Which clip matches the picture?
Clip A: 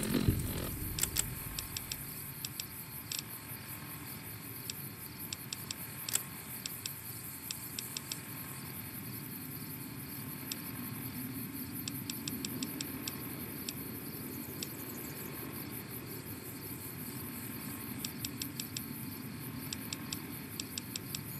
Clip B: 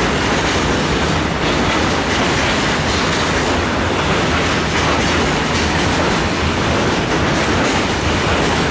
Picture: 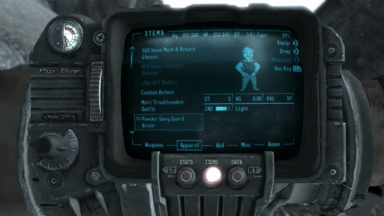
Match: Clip A